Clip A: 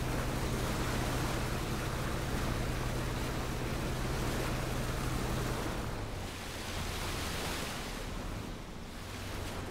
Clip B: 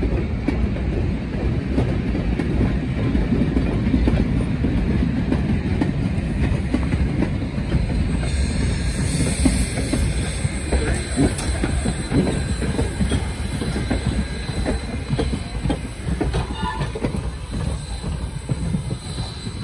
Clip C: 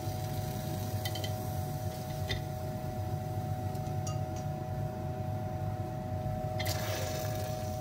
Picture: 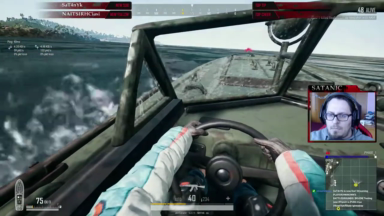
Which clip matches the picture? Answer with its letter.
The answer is A